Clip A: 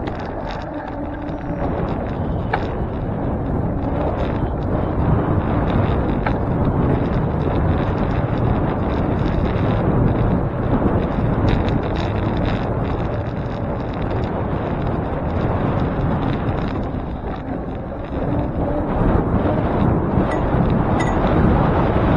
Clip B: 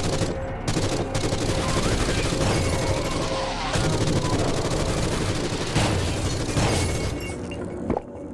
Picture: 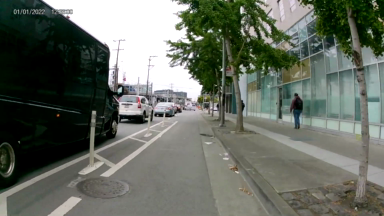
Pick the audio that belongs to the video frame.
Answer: A